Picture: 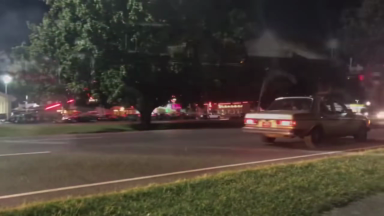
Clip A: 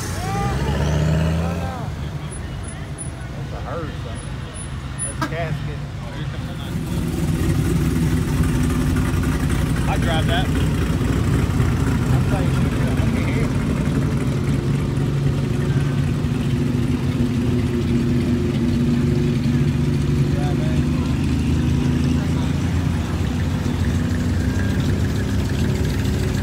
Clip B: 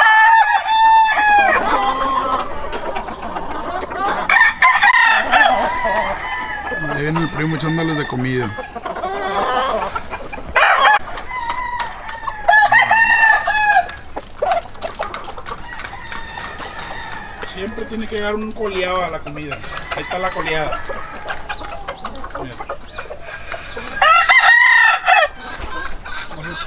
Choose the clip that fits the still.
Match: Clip A